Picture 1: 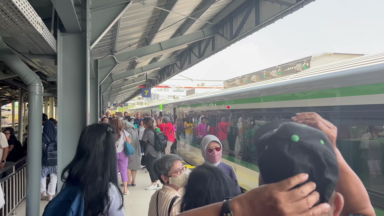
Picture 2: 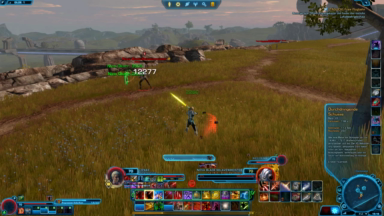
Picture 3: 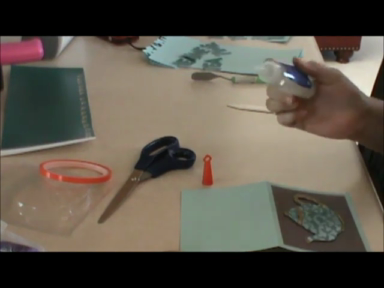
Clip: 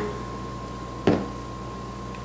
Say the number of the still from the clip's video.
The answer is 3